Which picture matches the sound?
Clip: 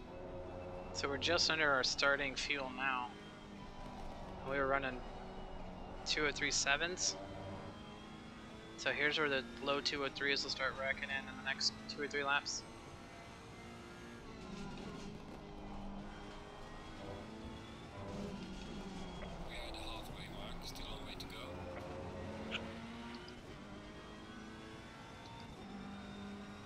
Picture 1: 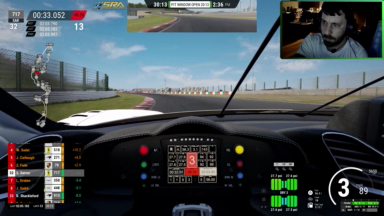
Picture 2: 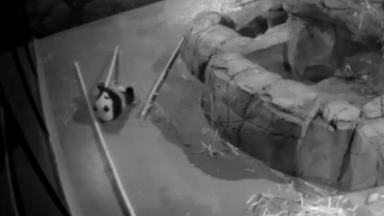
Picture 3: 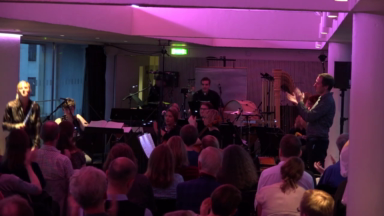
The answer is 1